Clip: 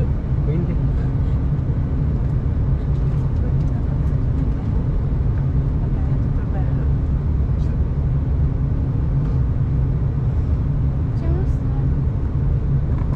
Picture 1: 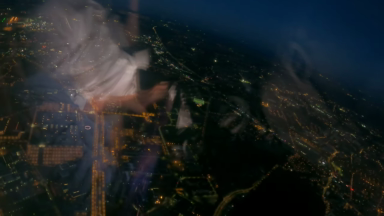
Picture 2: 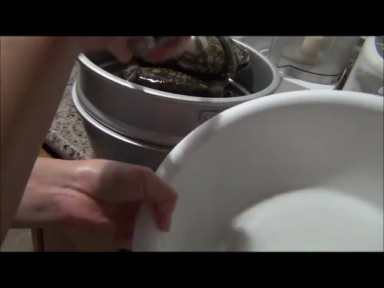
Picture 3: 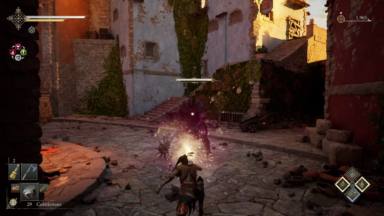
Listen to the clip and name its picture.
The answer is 1